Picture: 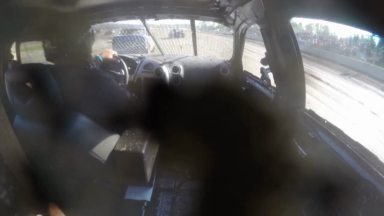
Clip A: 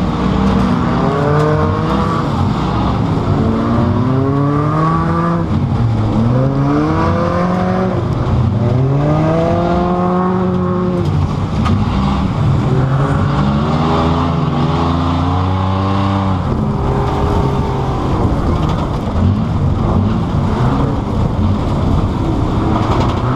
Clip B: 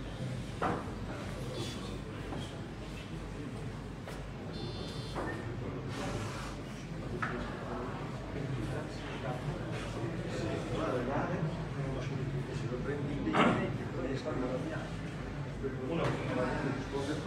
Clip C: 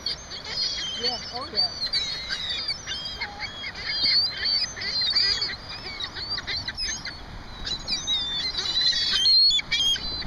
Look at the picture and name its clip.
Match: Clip A